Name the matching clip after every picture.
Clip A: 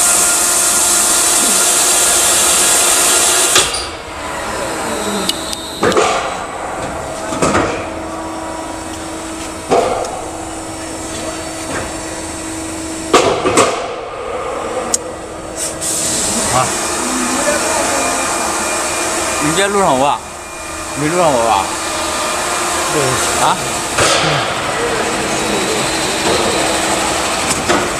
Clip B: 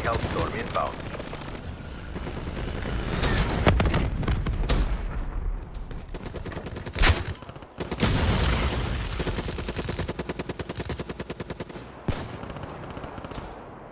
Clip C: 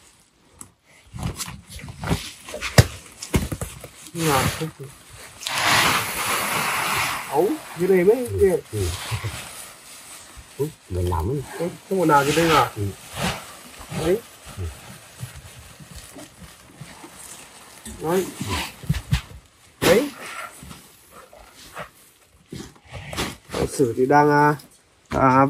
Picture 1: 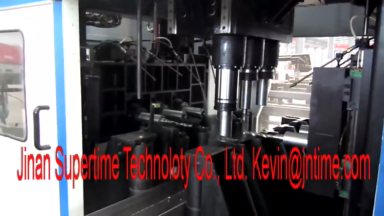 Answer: A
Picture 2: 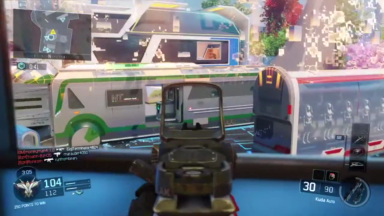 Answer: B